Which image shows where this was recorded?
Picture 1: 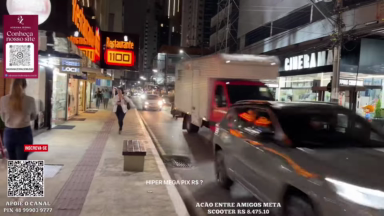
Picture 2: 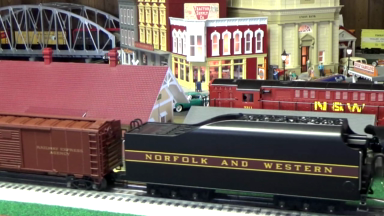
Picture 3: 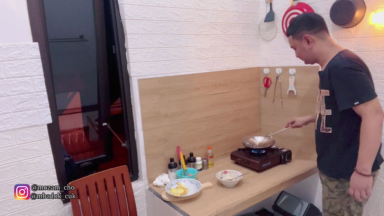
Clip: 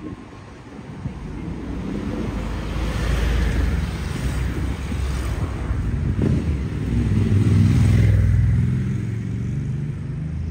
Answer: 1